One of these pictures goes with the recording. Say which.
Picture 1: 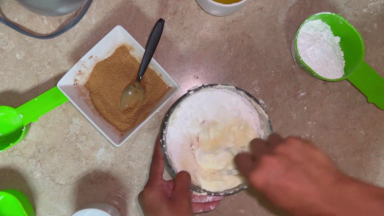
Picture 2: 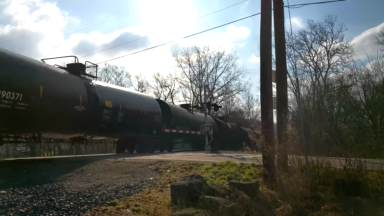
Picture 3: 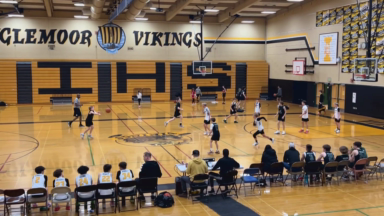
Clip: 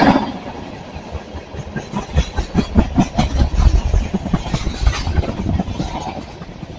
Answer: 2